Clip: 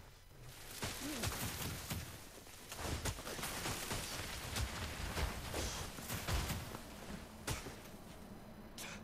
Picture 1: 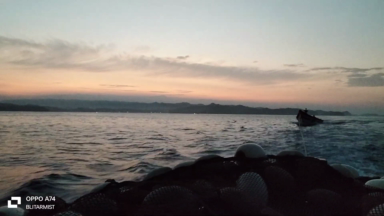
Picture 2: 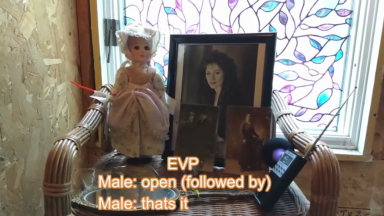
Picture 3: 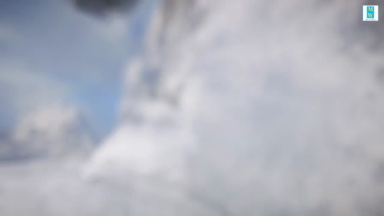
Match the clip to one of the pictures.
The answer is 3